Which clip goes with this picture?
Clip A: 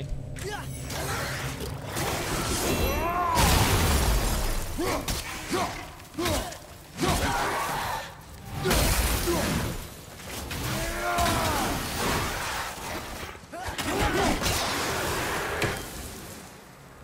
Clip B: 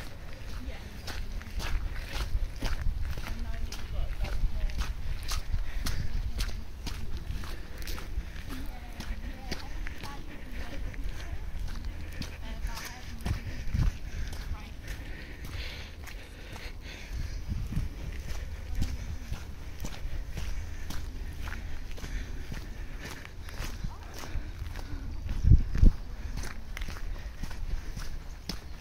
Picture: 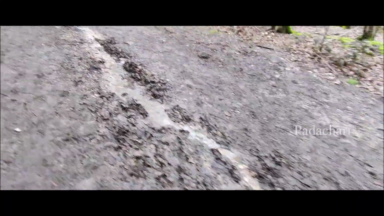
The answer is B